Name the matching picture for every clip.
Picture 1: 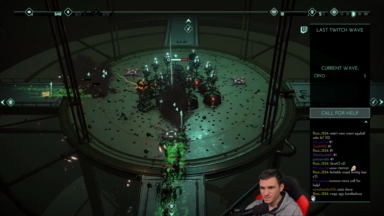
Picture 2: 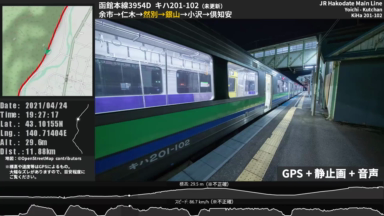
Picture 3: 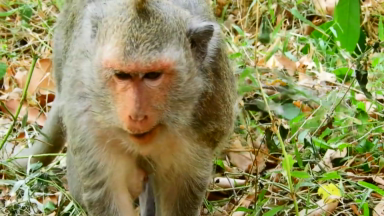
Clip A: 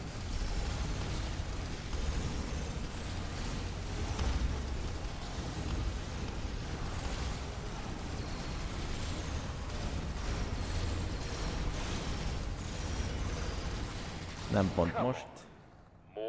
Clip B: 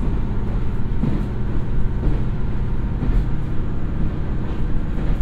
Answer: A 1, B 2